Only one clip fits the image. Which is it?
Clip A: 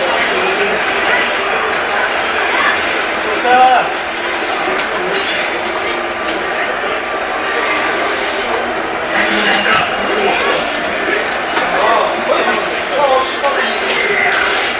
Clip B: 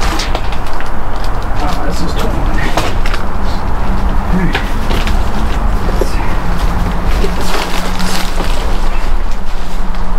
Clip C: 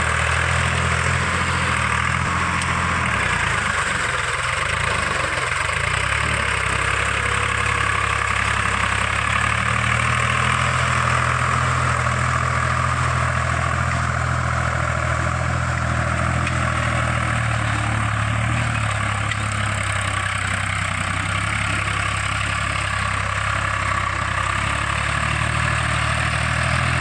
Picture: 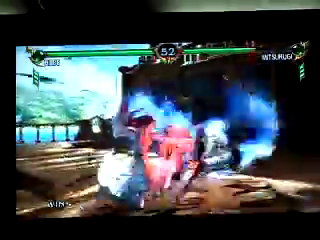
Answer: A